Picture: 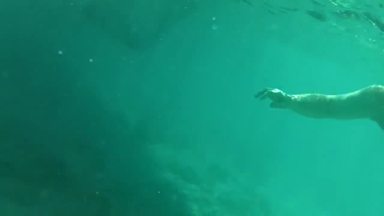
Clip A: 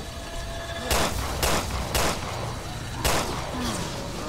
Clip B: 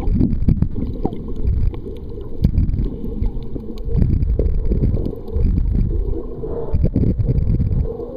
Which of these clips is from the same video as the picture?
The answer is B